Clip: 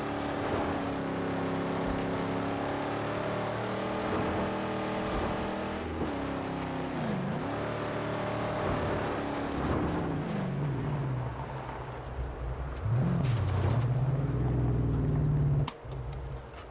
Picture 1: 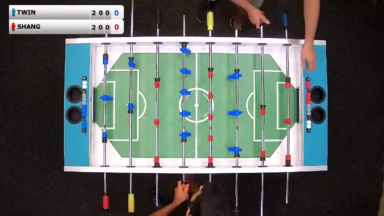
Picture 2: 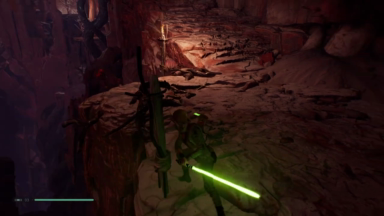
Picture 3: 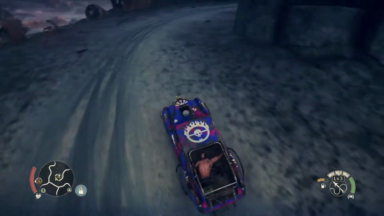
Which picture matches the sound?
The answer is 3